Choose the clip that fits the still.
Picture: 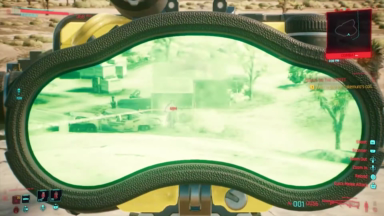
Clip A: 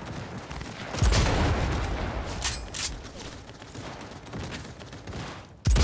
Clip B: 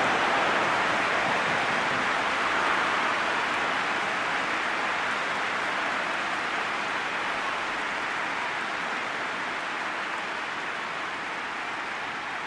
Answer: A